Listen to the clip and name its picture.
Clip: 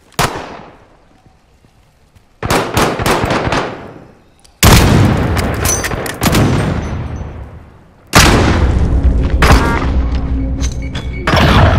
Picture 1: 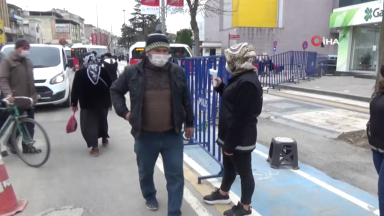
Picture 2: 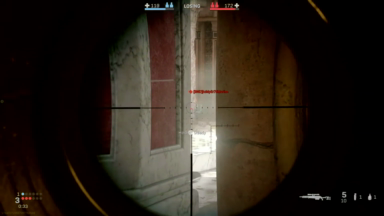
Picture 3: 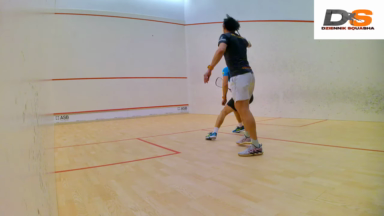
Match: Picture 2